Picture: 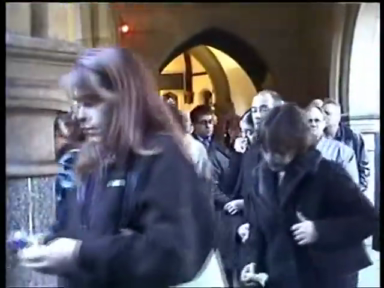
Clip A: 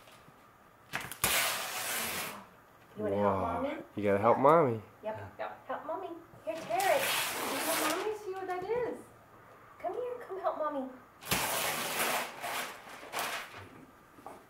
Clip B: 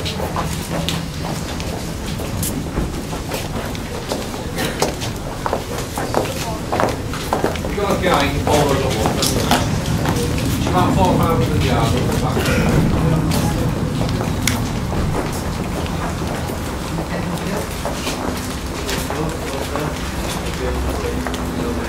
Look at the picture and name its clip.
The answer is B